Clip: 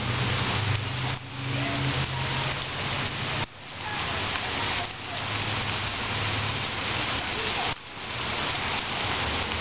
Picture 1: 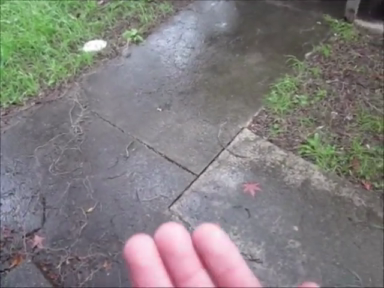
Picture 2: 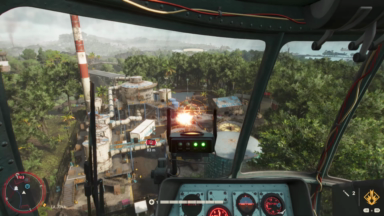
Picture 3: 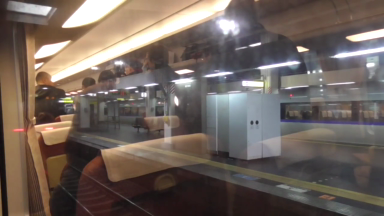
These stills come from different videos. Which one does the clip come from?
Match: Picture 1